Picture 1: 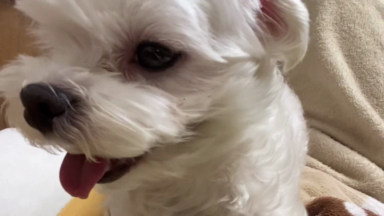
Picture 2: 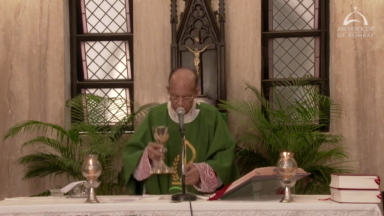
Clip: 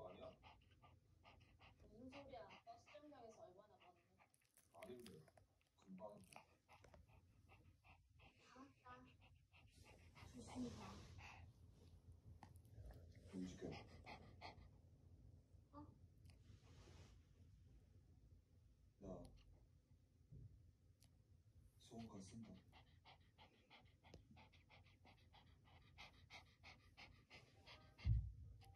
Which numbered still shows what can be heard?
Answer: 1